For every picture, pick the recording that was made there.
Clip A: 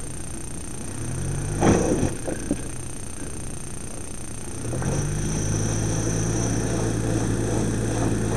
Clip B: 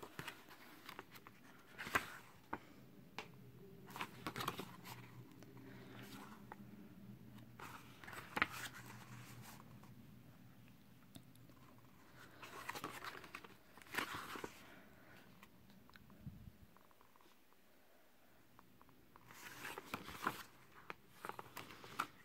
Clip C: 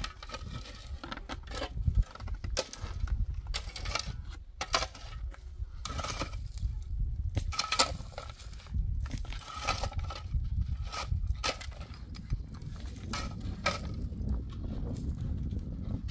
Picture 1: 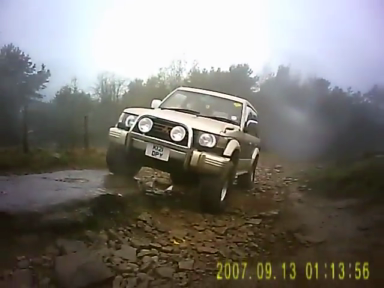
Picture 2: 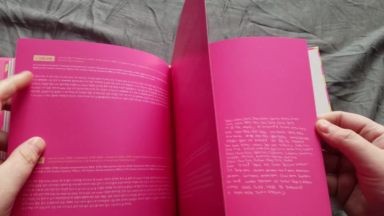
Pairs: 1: A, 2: B